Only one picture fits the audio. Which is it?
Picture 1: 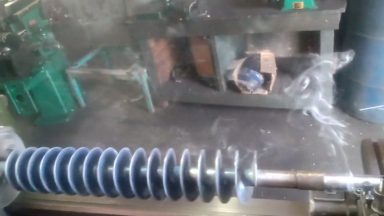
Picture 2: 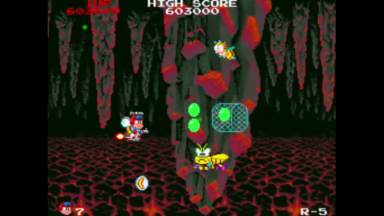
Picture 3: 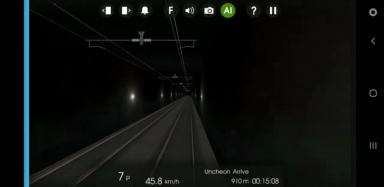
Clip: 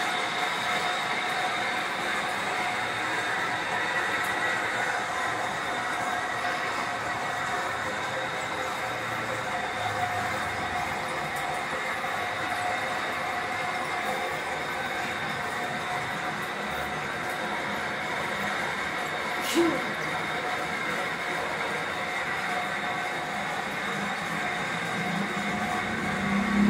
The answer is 1